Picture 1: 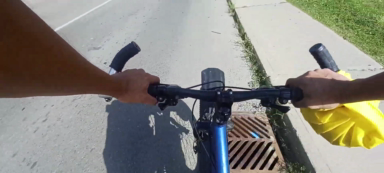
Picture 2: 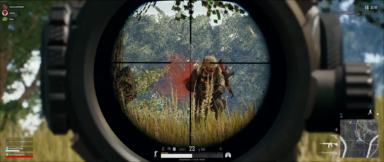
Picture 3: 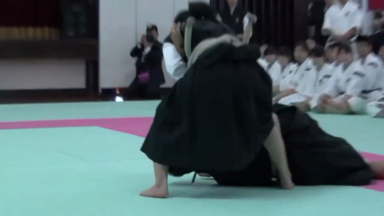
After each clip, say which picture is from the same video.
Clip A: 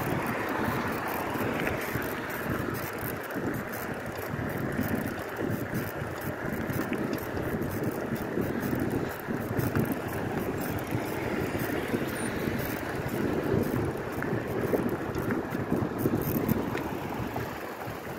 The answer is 1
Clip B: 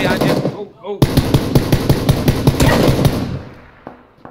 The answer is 2